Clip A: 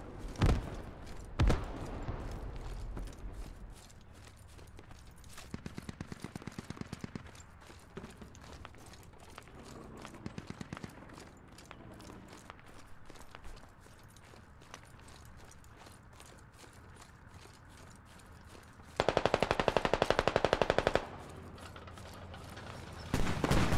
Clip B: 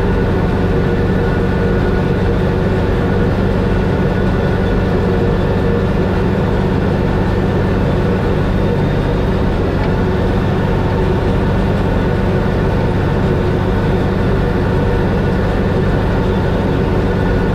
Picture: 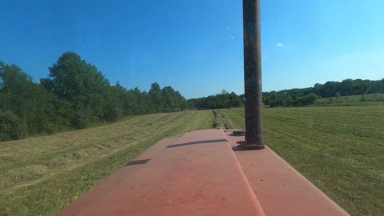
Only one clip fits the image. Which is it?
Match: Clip B